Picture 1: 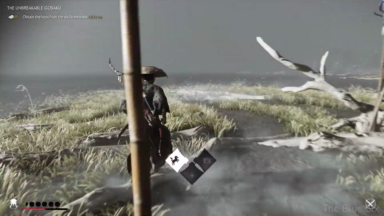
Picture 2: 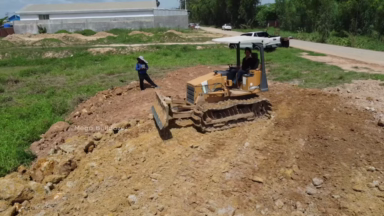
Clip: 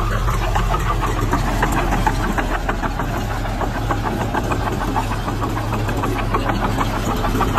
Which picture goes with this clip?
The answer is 2